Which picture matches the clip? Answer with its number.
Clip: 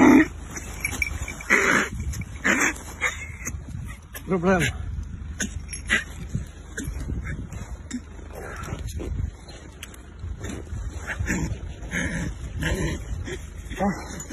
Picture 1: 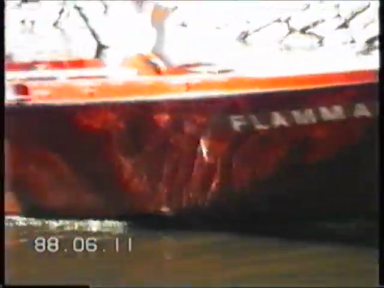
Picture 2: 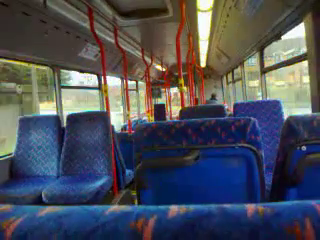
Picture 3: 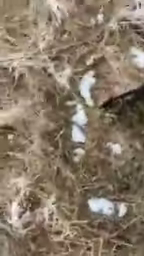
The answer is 3